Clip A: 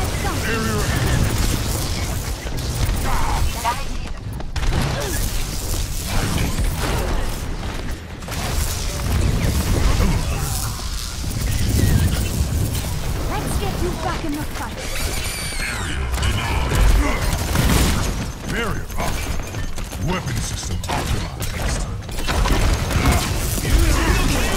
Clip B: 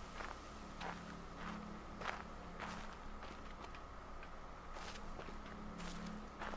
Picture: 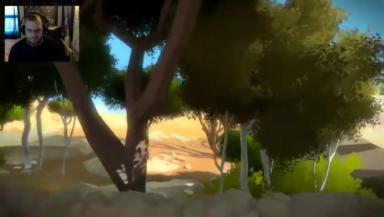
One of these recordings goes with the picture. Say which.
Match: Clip B